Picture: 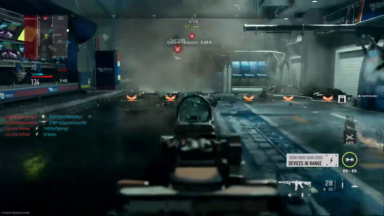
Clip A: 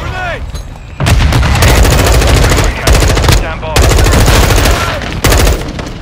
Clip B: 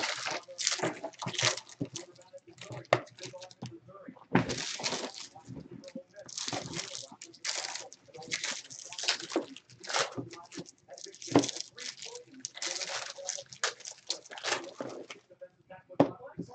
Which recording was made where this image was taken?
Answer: A